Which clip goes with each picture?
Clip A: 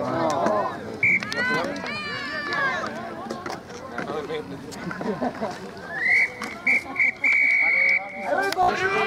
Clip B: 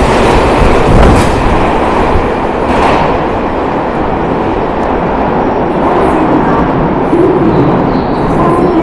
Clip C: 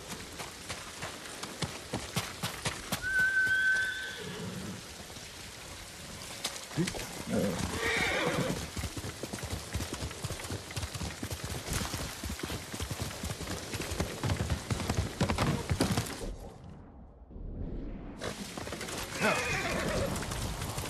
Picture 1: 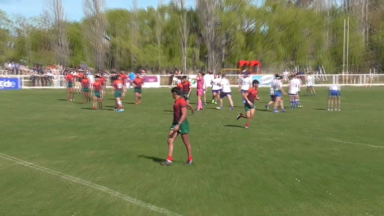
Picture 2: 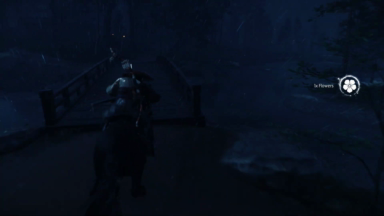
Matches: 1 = A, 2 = C